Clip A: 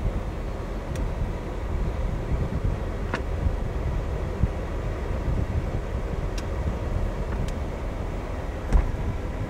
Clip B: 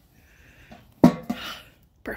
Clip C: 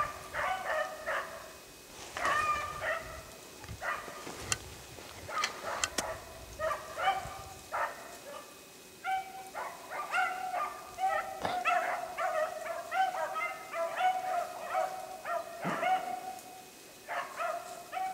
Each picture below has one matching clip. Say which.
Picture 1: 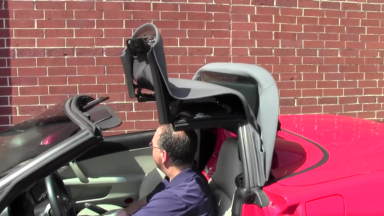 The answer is A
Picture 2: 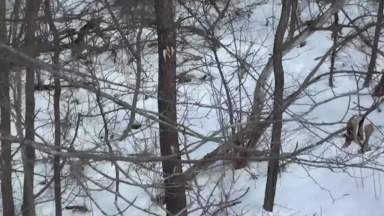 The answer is C